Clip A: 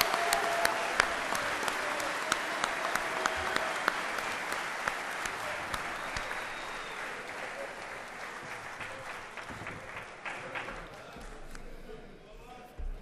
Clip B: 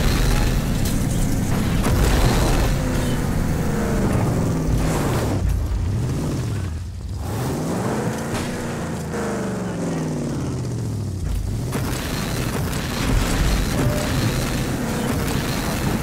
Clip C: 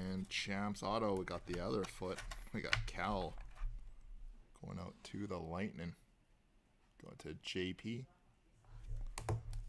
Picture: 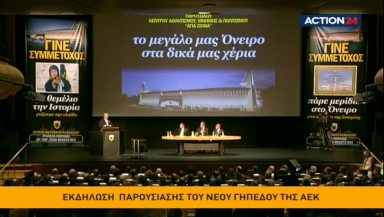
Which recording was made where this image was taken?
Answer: A